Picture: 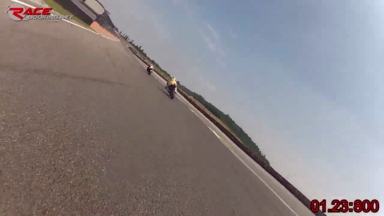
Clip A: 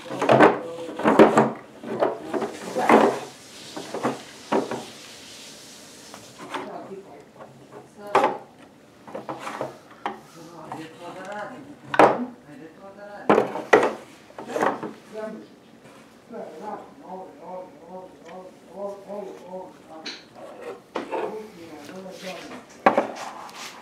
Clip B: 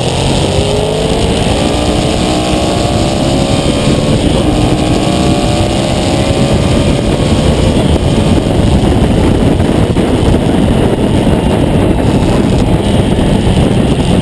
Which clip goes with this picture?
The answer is B